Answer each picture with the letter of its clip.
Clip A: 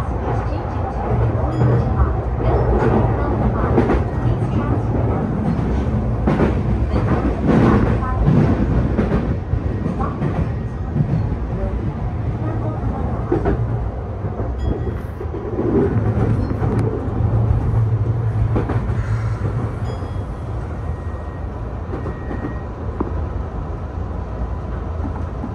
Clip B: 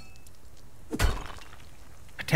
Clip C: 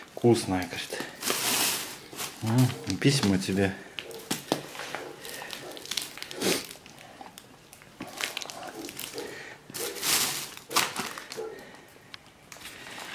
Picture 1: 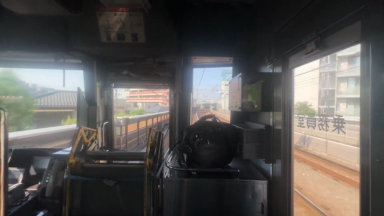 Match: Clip A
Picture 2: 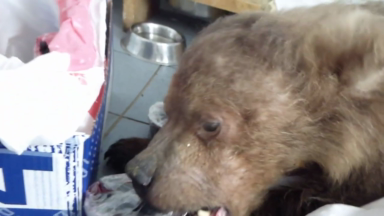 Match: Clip C